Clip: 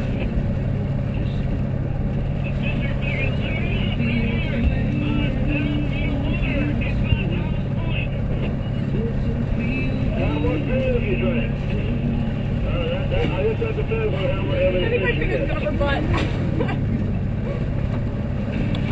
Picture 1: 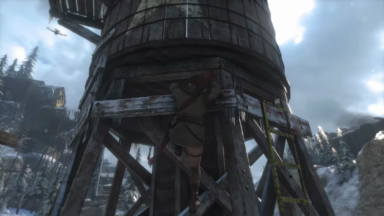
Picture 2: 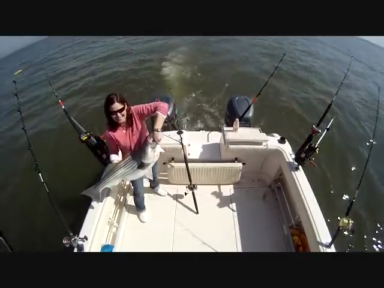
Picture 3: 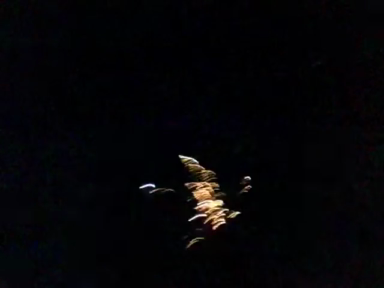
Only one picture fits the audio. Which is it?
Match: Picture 2